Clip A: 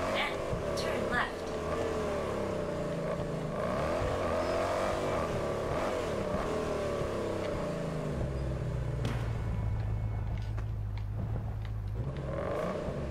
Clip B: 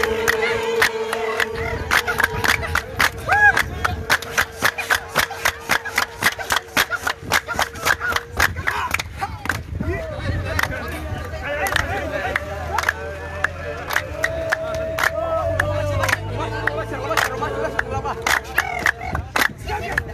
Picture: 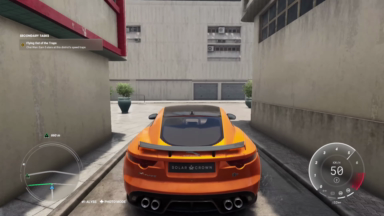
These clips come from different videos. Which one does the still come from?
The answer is A